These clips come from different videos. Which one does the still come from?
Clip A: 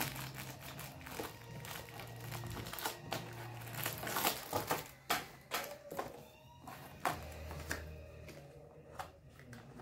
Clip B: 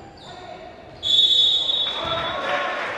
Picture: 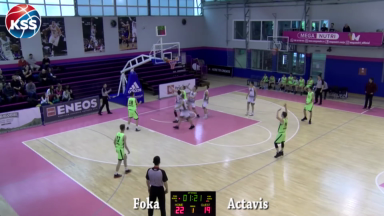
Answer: B